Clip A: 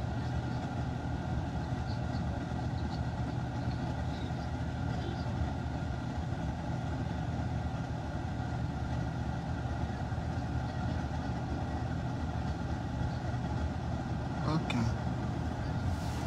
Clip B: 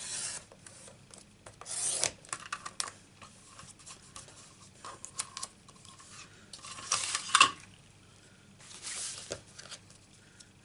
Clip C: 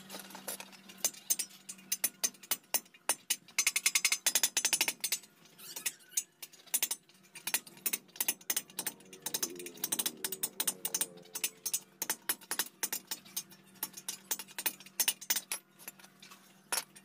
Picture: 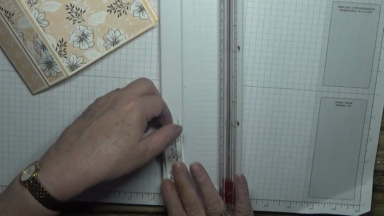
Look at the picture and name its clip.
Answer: B